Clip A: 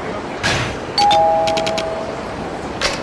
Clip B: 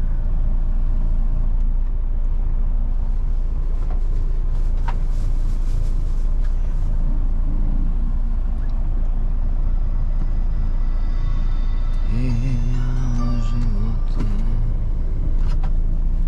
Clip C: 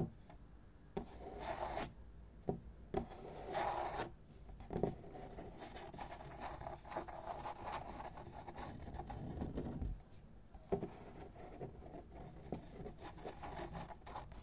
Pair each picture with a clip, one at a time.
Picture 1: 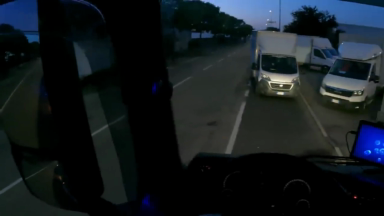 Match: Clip B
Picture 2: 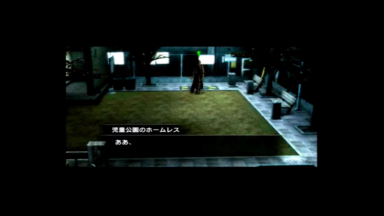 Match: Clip A